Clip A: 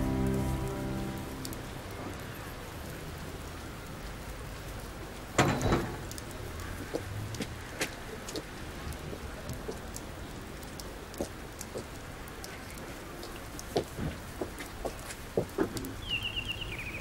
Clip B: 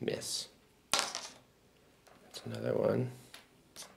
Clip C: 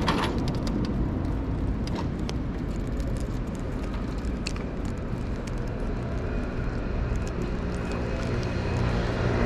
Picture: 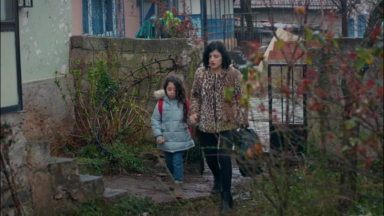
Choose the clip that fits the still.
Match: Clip A